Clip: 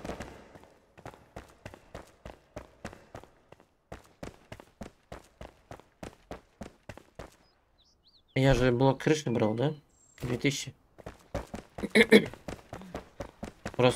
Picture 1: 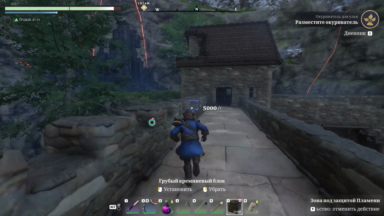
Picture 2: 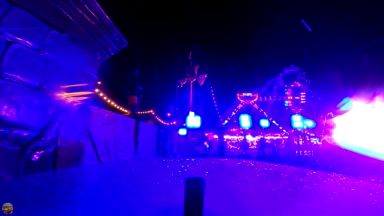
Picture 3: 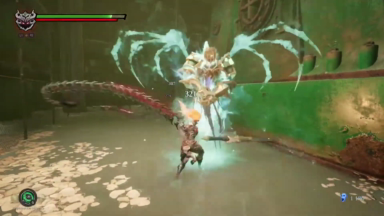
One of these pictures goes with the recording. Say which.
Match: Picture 1